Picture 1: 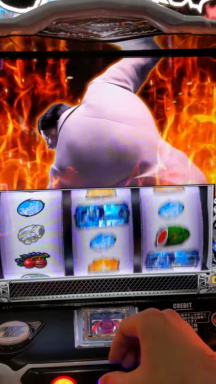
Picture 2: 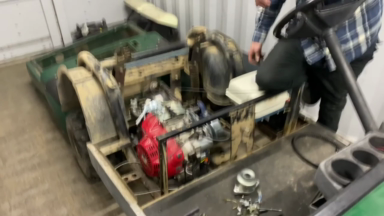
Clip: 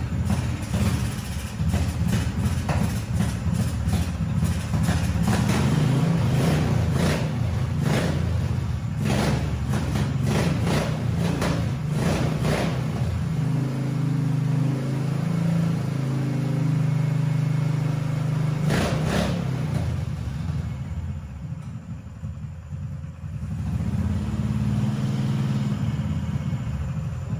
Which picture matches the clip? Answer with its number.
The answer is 2